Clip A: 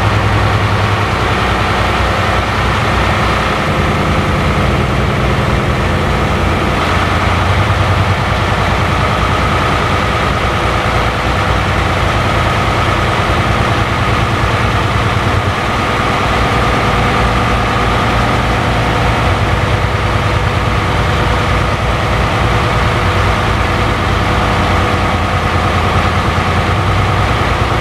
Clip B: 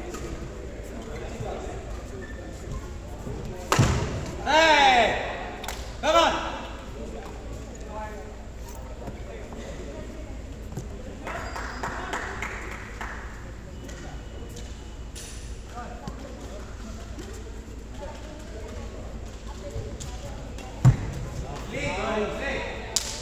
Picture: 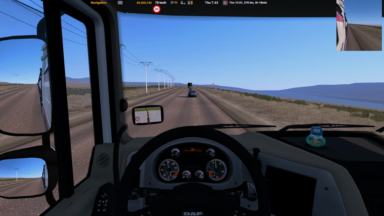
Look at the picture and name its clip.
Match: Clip A